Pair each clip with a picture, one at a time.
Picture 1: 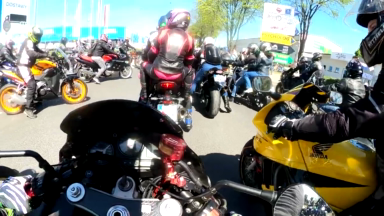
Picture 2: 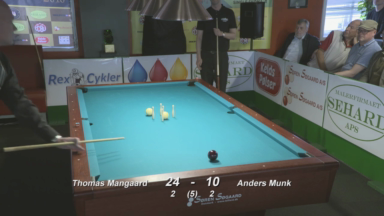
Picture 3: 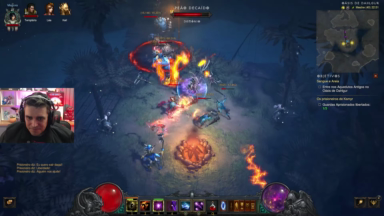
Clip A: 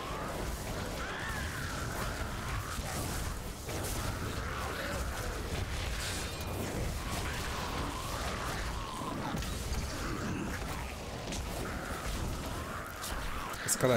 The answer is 3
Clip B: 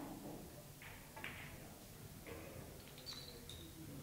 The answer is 2